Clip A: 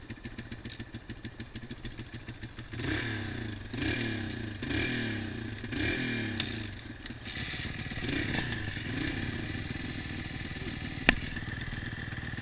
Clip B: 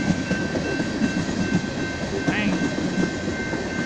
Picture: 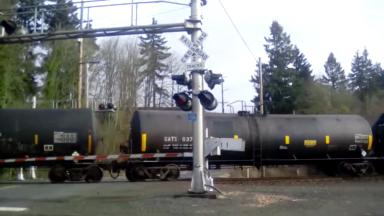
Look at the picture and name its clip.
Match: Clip B